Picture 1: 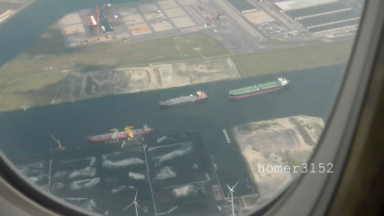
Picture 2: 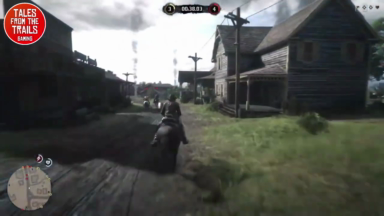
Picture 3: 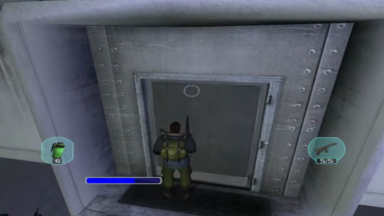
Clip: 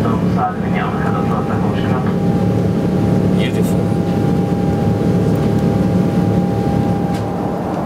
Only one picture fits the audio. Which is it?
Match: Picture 1